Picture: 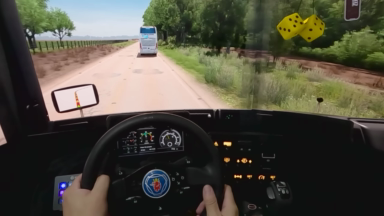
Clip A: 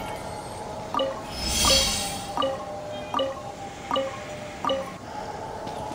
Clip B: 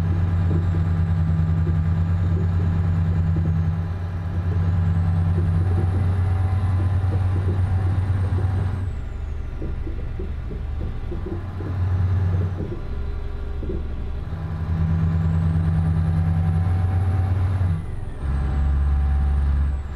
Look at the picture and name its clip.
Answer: B